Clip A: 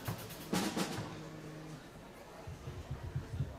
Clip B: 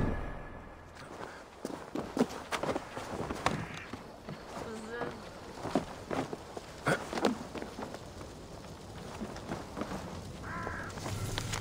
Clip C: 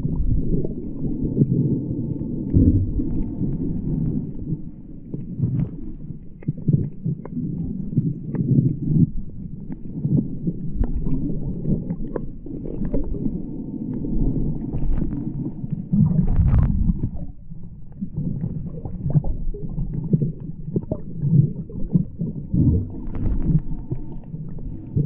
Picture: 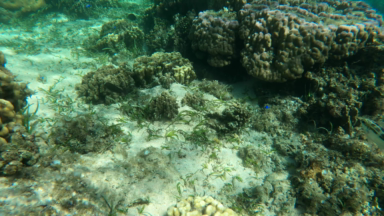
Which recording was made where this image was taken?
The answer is C